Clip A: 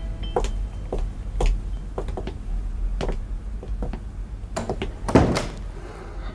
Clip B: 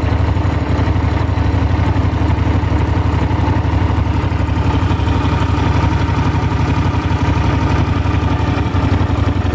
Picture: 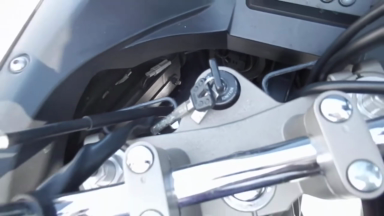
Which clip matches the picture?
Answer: B